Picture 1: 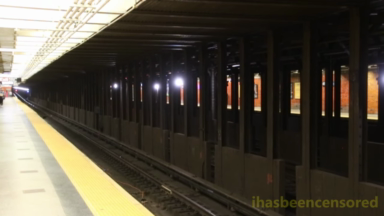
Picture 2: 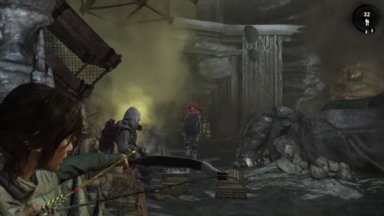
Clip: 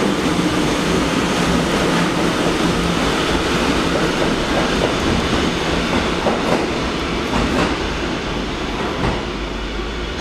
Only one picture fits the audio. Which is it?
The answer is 1